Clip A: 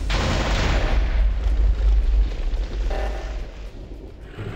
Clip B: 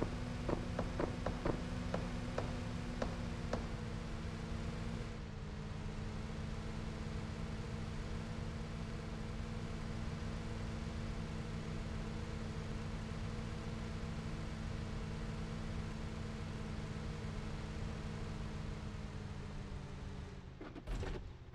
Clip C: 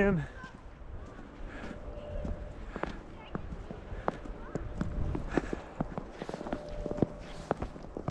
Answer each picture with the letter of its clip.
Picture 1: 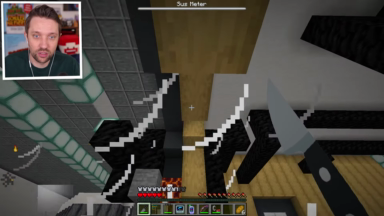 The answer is A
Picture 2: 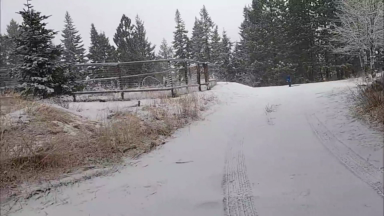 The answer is C